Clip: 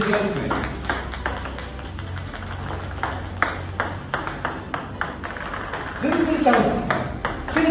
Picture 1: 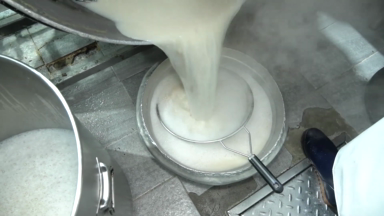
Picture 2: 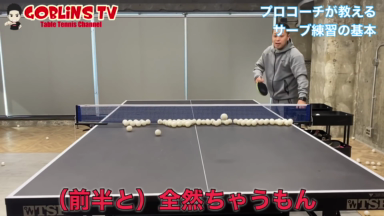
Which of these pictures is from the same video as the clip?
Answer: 2